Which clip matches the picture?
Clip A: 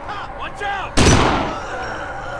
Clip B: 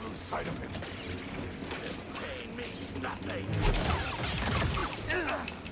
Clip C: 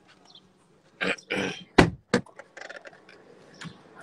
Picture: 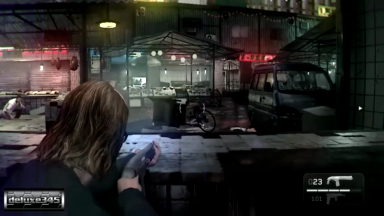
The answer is A